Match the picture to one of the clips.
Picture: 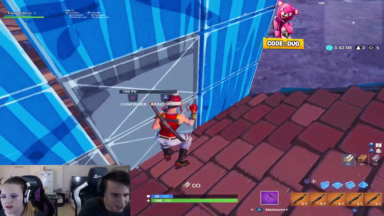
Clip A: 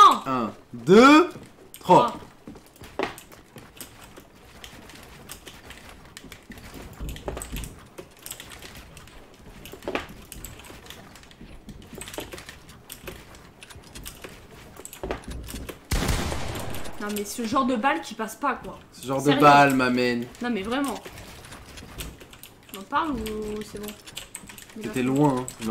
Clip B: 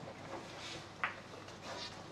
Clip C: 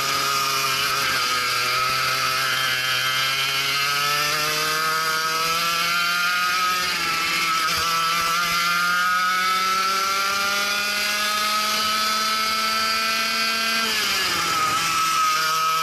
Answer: A